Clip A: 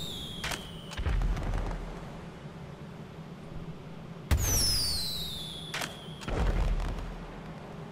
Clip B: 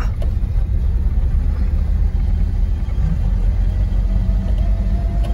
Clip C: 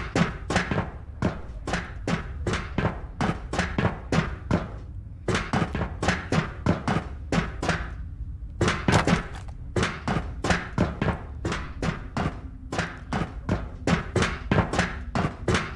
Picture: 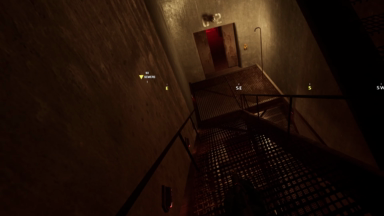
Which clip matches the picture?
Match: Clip C